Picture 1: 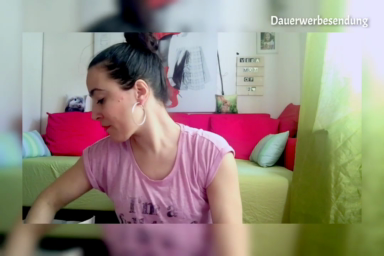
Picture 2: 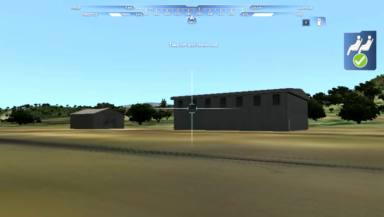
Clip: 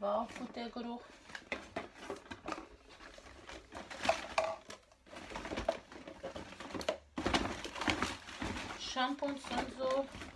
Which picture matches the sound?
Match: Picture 1